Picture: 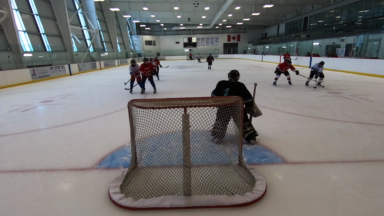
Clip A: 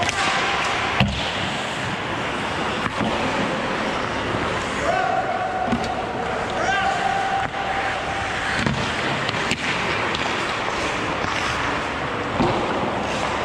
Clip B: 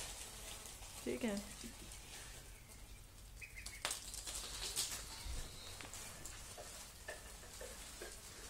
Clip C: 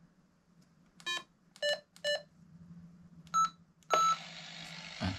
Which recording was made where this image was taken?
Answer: A